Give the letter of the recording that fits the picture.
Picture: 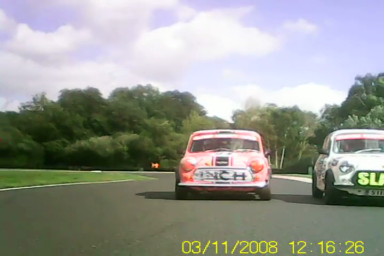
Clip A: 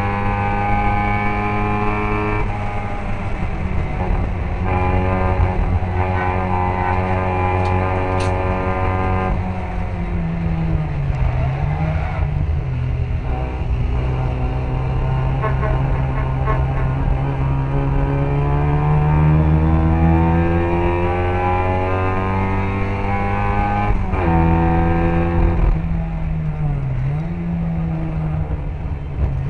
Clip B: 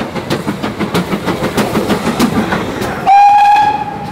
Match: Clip A